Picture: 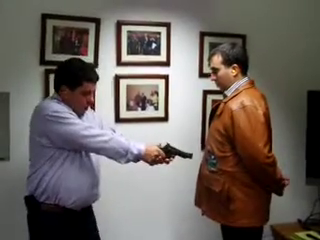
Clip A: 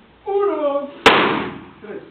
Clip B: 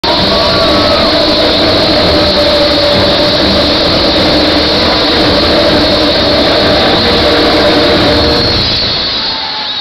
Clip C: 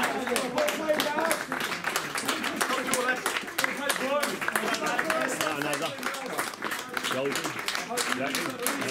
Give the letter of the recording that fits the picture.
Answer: A